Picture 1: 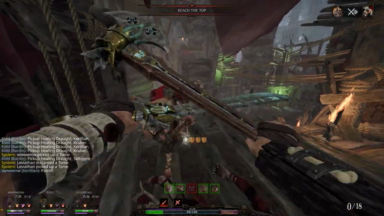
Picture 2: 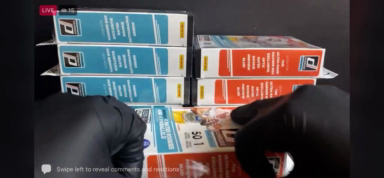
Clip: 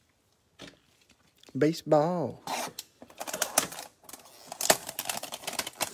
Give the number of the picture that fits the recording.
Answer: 2